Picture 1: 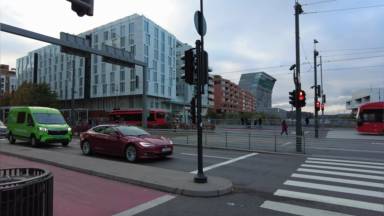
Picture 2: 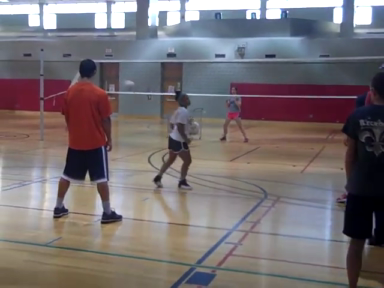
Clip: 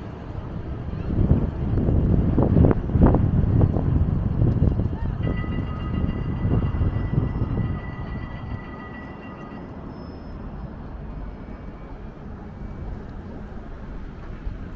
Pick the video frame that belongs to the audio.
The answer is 1